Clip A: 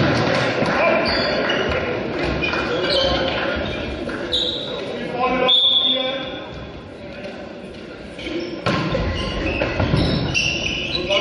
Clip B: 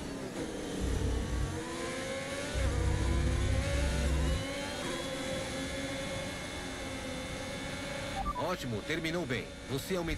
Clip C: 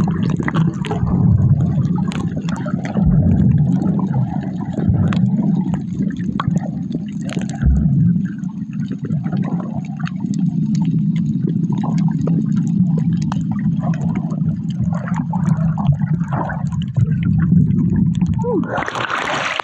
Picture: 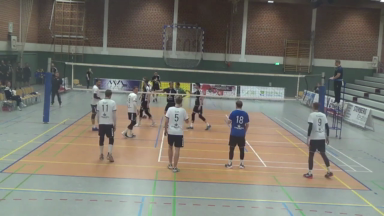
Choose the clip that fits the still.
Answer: A